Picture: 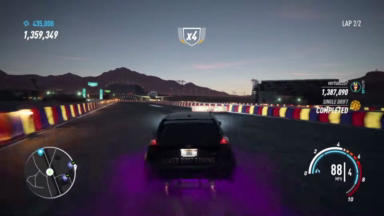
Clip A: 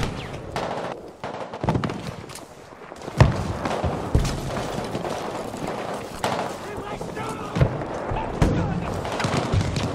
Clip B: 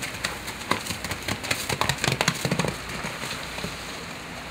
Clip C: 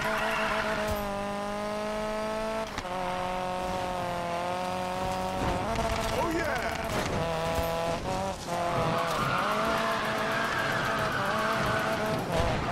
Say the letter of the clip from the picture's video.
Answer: C